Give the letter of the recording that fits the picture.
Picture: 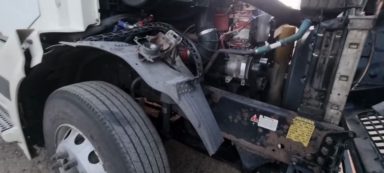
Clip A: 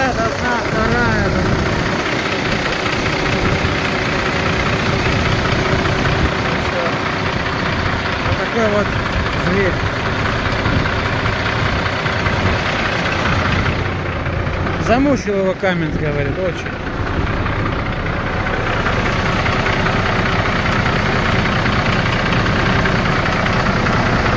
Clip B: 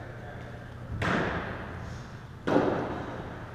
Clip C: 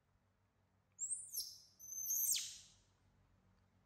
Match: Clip A